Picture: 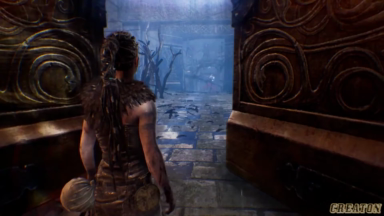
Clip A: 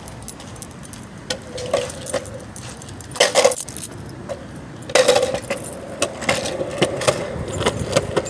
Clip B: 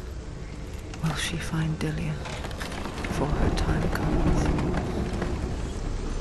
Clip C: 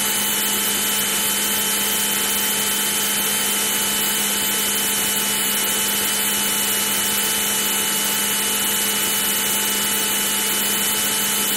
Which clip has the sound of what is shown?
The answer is B